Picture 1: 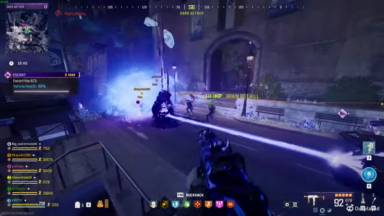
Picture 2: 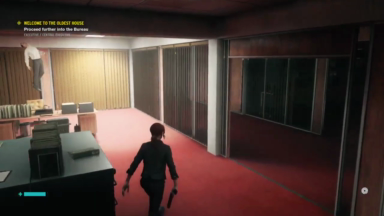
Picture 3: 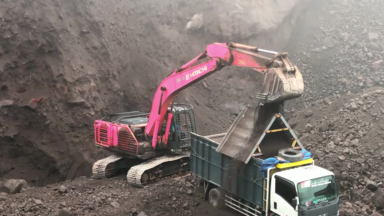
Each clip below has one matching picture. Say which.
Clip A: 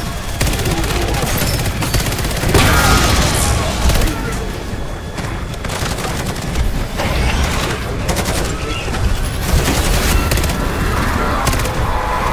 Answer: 1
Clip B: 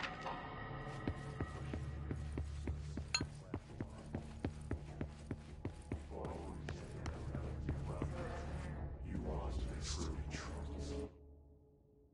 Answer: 2